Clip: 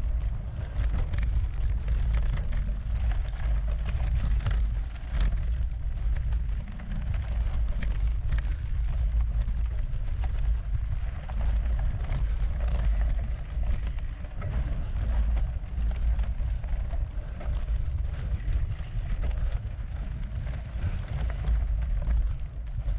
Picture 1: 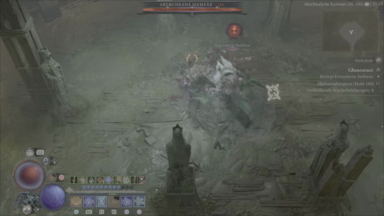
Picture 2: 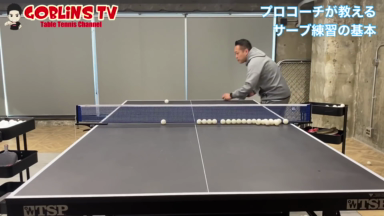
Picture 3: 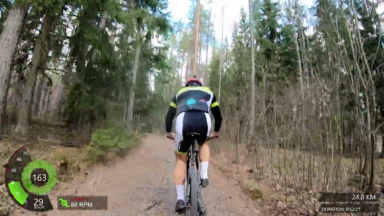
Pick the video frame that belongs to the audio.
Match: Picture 3